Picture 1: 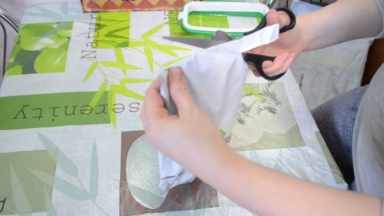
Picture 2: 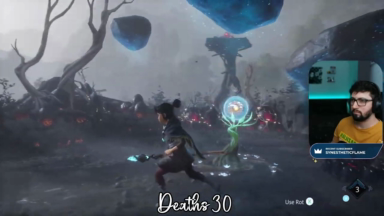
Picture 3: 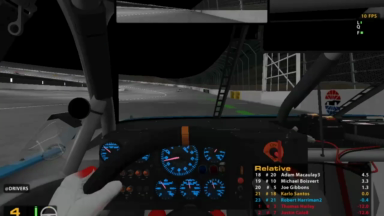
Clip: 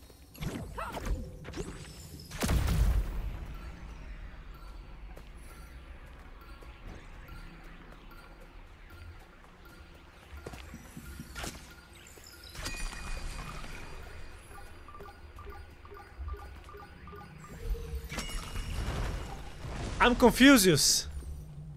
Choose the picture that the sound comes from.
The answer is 2